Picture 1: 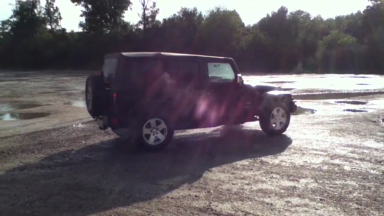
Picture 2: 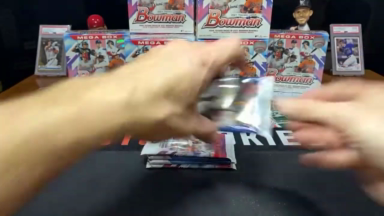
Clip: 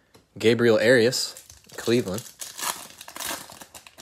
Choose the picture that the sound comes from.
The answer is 2